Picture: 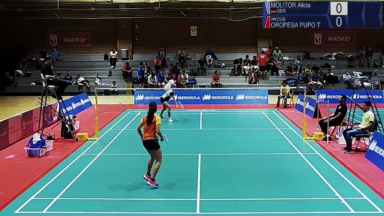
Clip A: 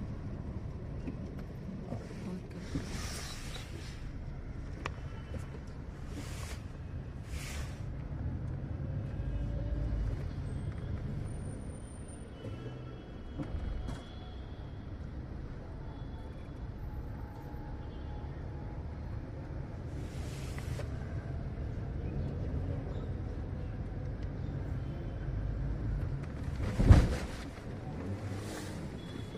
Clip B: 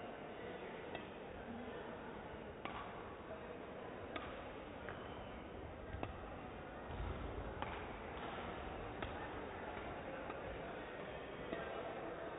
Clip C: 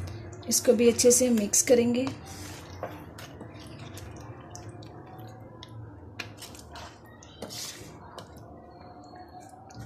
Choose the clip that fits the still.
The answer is B